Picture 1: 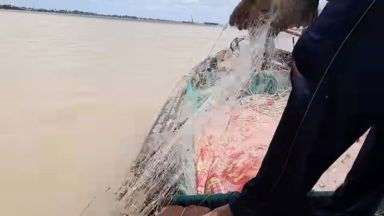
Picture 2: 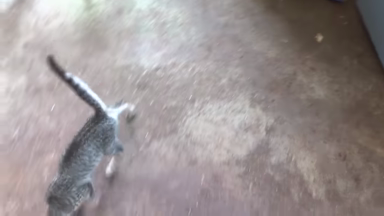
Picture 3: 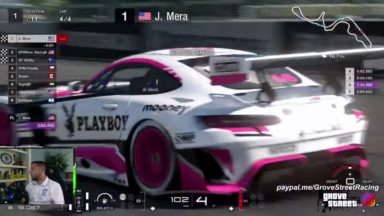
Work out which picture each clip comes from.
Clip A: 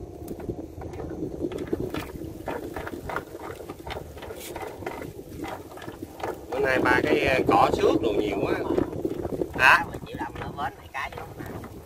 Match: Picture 1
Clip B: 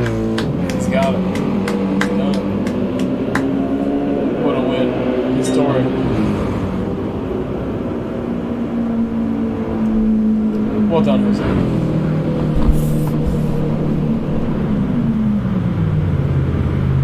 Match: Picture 3